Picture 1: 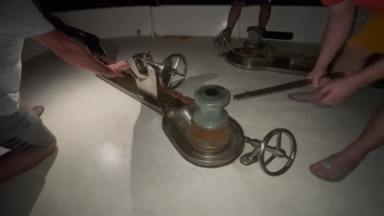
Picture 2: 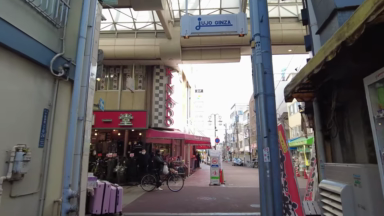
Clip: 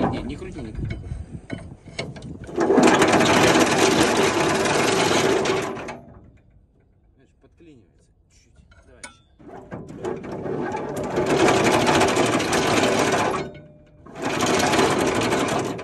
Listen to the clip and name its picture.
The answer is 1